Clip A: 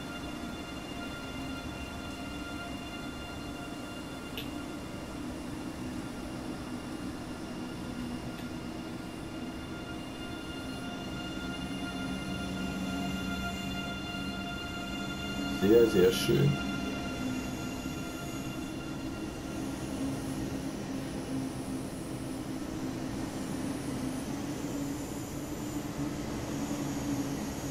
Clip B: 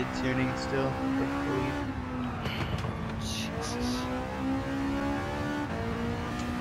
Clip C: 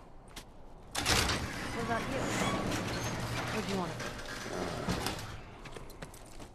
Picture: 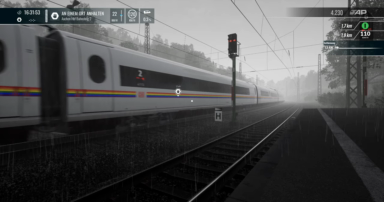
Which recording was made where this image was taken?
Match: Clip A